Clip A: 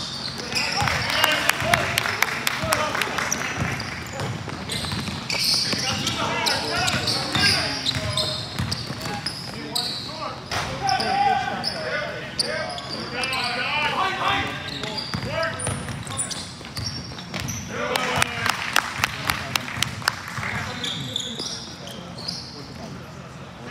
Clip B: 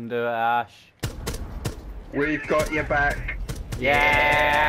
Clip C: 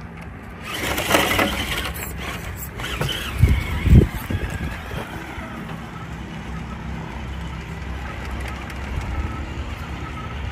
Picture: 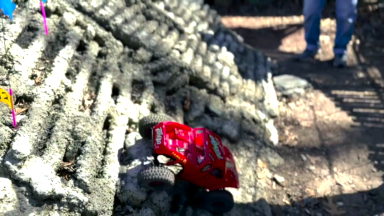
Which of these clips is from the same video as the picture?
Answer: C